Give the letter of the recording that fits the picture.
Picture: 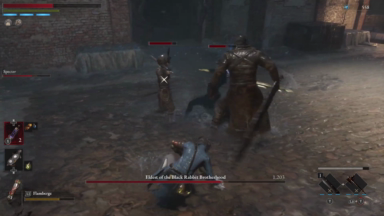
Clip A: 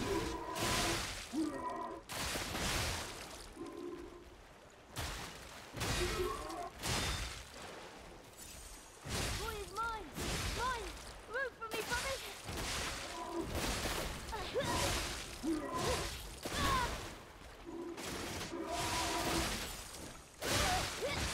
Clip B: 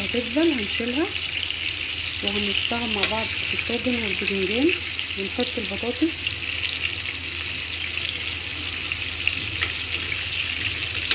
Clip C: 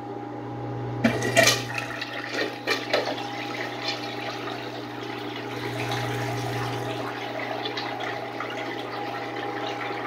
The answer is A